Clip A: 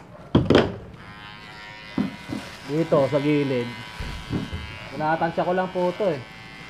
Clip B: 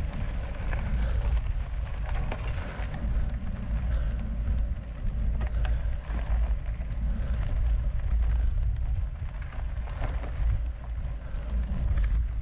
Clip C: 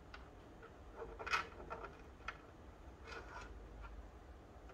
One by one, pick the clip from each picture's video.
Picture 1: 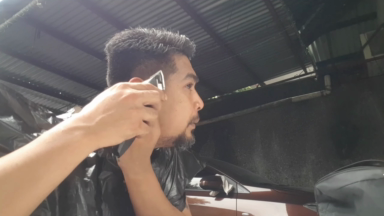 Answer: A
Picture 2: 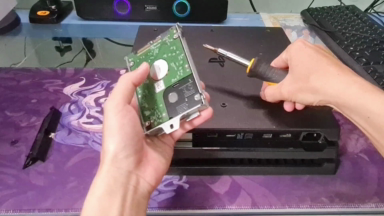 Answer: C